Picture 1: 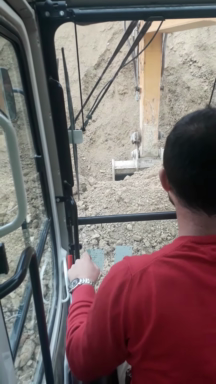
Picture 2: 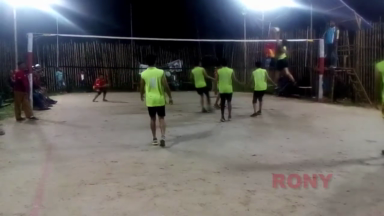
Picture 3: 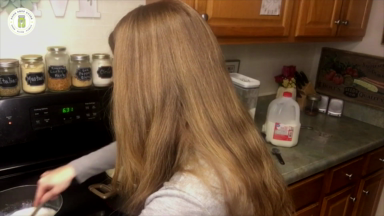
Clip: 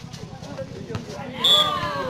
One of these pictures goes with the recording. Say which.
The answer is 2